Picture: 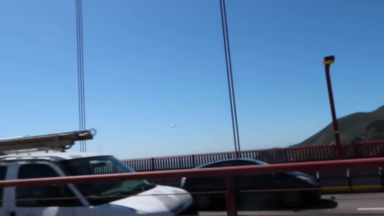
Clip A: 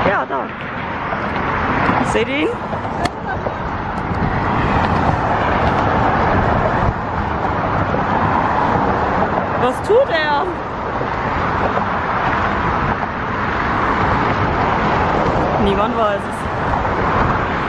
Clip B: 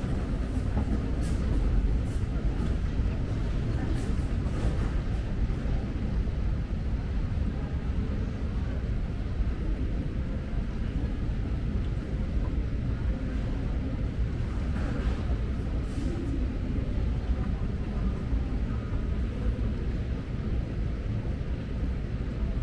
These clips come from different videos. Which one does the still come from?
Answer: A